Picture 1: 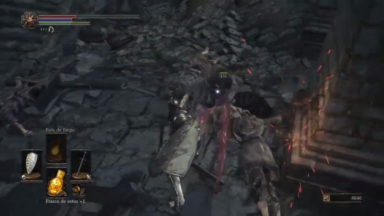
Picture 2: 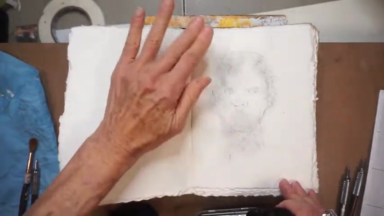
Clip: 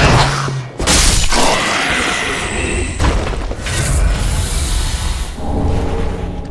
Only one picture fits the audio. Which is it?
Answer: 1